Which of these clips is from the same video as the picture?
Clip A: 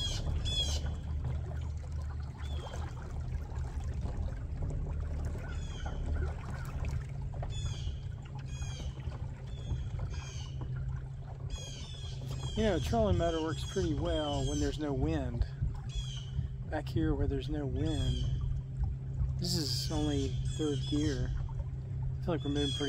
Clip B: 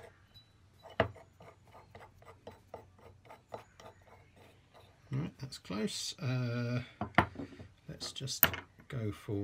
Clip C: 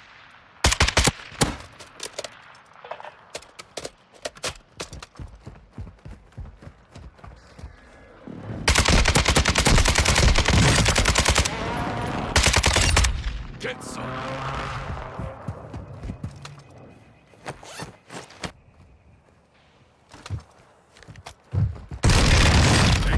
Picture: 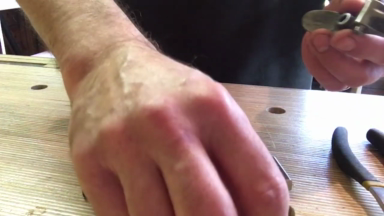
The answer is B